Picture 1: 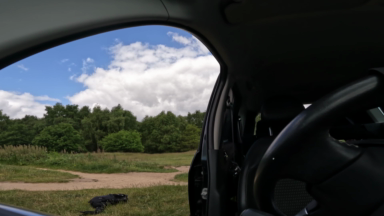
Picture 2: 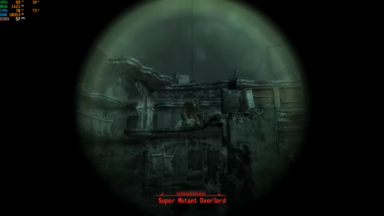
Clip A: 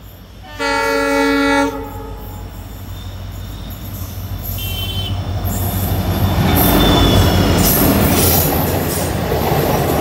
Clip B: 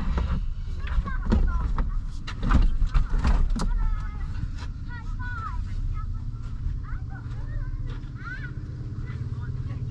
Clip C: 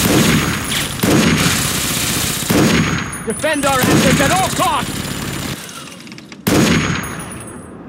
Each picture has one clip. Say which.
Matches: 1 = B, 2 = C